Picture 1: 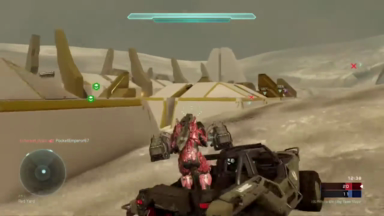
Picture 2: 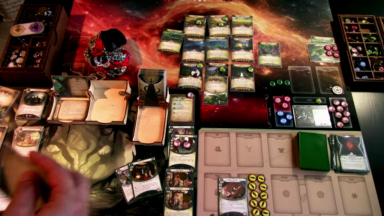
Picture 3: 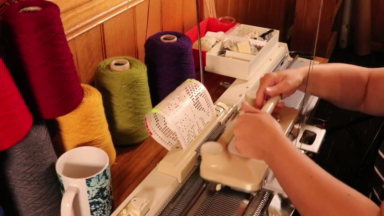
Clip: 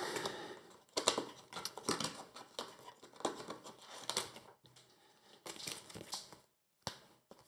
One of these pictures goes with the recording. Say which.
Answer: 2